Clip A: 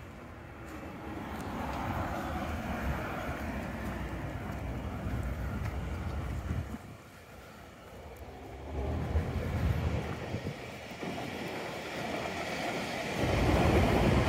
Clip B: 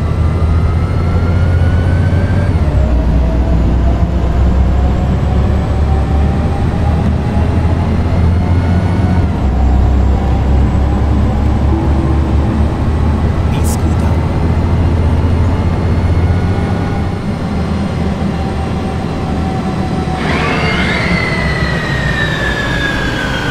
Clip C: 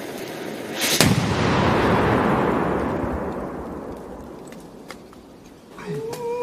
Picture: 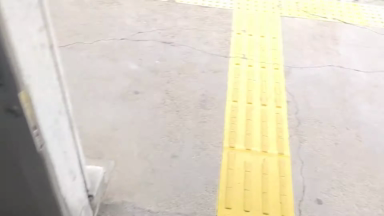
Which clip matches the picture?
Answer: A